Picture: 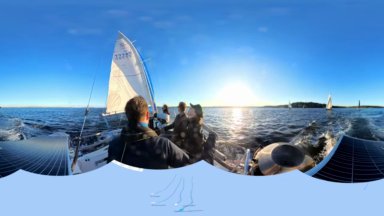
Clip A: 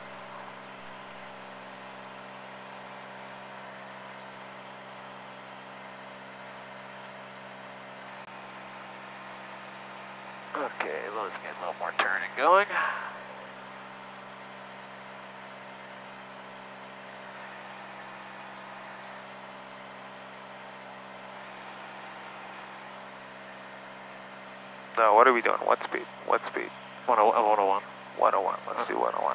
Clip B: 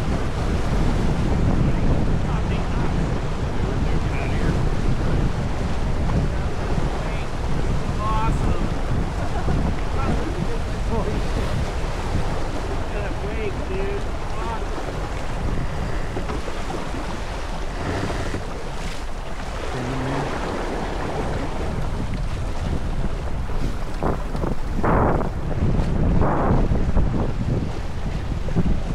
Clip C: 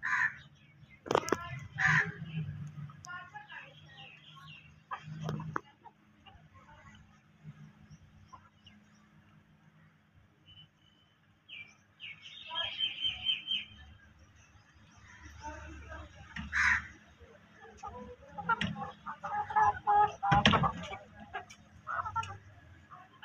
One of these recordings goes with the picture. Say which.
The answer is B